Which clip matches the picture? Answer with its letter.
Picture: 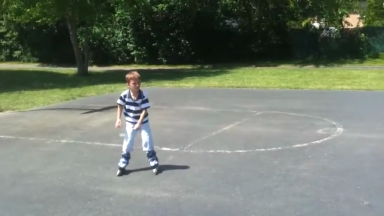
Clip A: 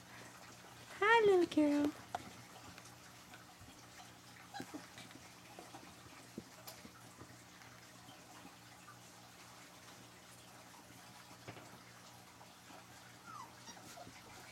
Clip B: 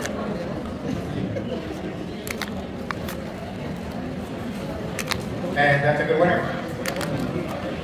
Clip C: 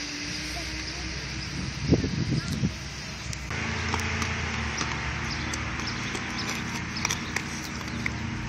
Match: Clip C